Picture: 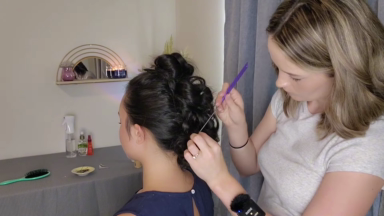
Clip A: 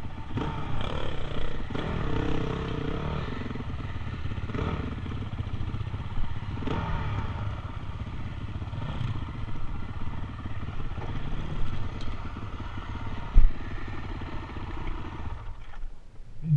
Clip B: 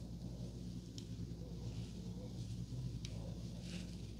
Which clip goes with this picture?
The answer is B